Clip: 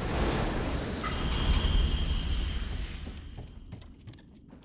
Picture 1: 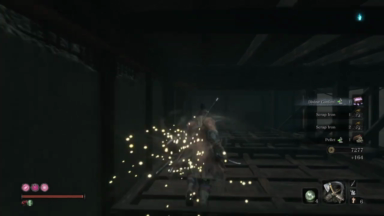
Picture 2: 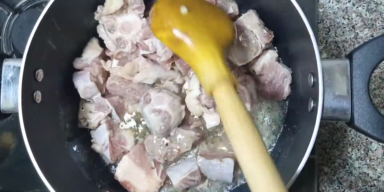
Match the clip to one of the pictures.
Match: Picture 1